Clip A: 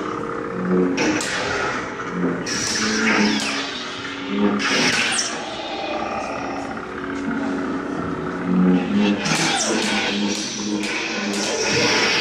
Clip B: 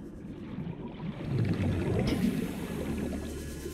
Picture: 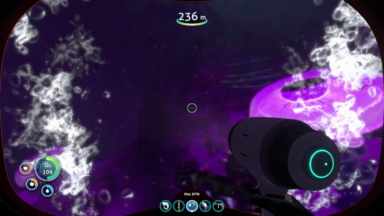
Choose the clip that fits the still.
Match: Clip B